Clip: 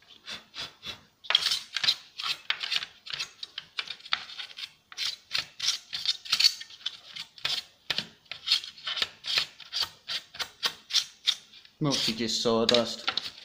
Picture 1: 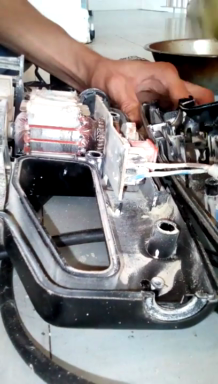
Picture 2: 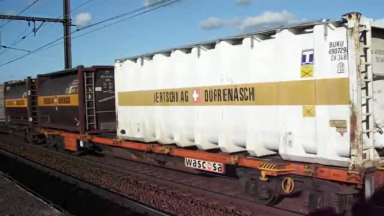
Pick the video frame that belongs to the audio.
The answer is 1